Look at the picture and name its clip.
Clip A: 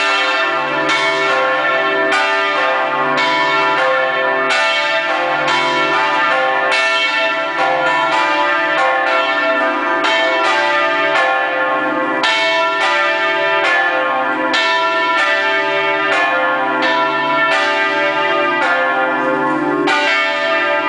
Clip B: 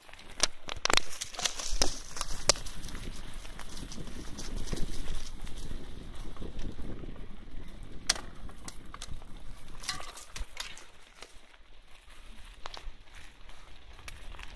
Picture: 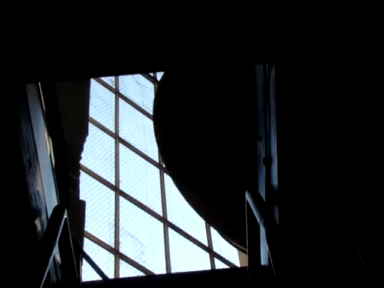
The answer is A